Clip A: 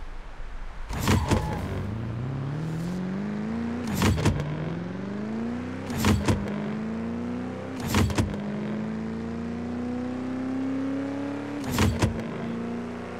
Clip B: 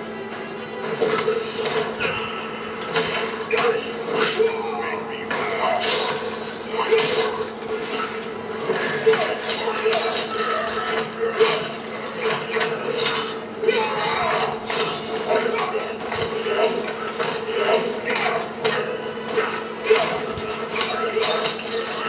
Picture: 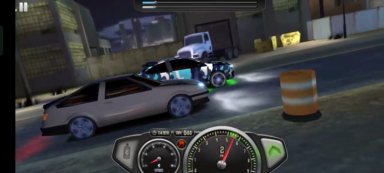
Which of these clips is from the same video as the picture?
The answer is A